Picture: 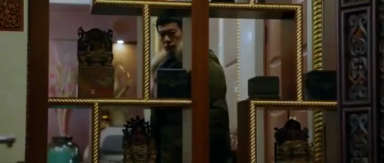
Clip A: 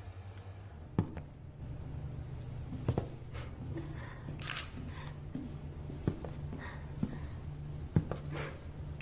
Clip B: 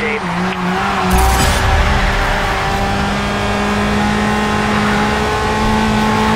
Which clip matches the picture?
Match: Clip A